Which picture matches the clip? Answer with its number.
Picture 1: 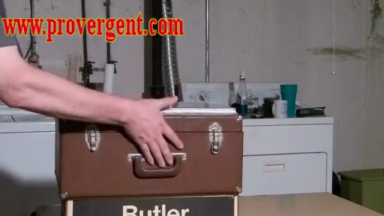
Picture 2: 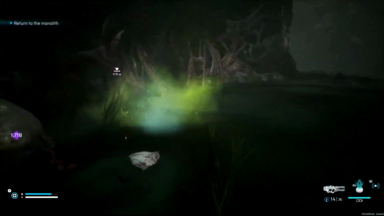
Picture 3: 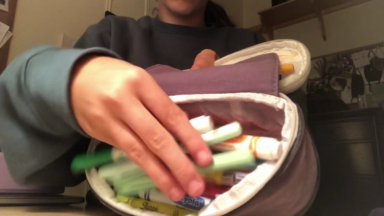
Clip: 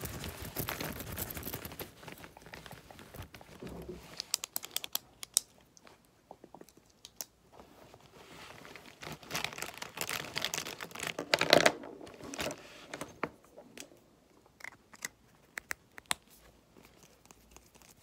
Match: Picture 3